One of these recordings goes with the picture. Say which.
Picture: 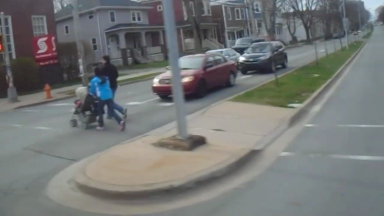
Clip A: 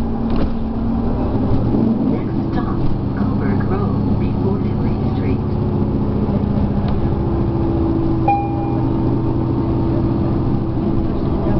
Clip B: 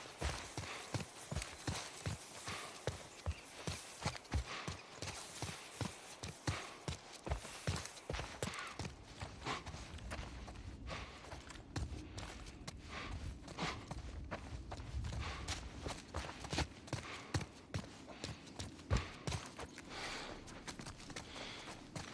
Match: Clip A